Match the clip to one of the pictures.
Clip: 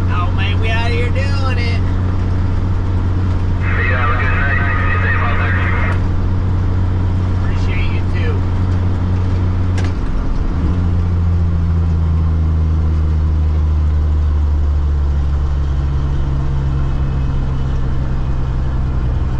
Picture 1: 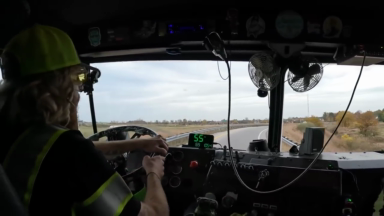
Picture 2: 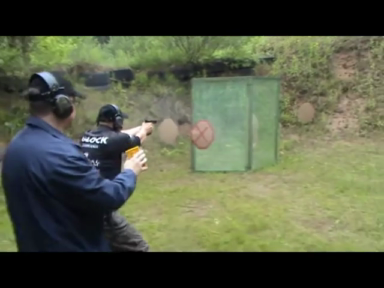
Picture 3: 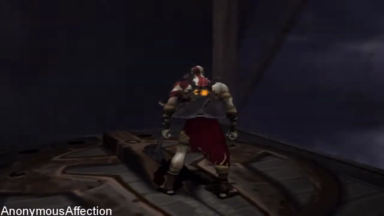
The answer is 1